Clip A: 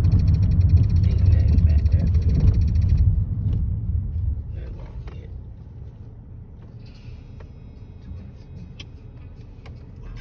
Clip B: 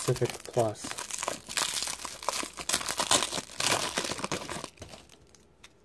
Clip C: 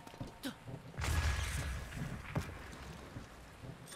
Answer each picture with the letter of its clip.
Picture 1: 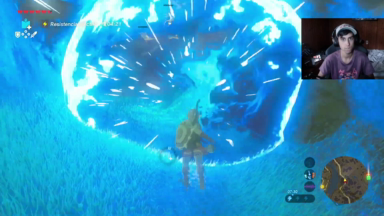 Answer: C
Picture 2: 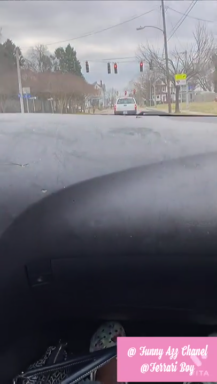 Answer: A